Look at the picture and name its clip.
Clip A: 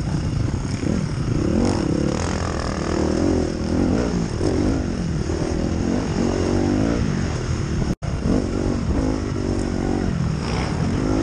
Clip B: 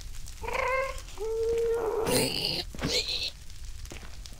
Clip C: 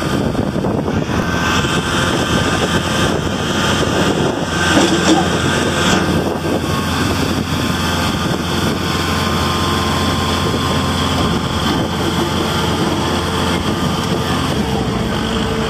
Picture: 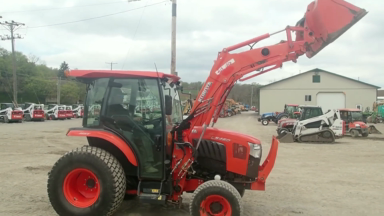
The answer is C